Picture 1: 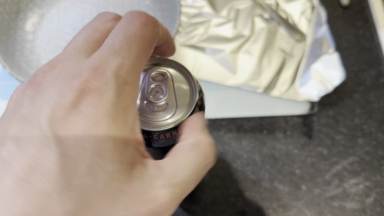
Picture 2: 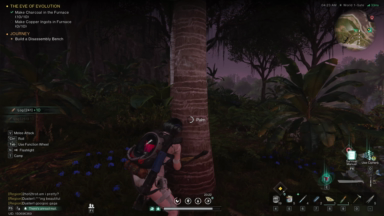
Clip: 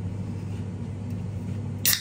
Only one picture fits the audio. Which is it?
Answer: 1